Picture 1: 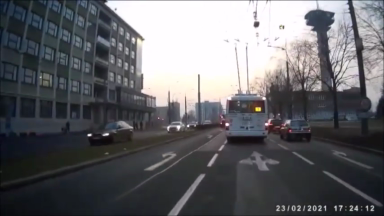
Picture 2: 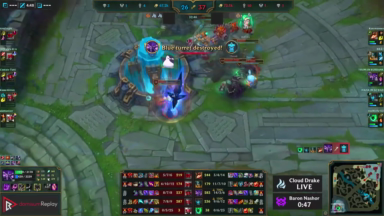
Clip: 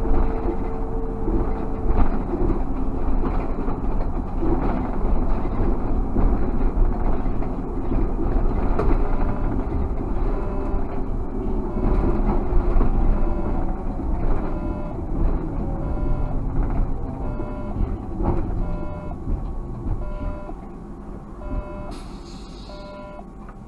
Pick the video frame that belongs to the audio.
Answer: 1